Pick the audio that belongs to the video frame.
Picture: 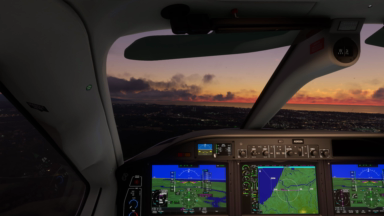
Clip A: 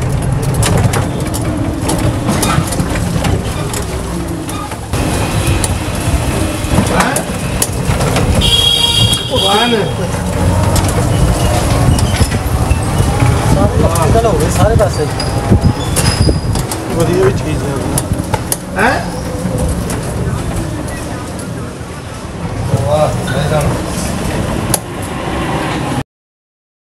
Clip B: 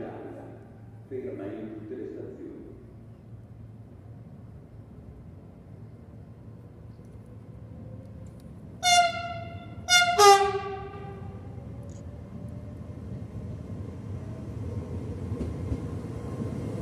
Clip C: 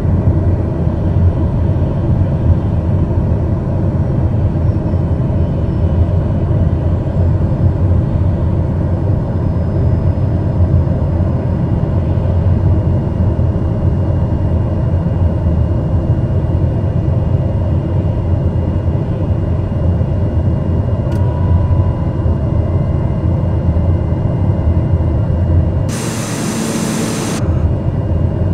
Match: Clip C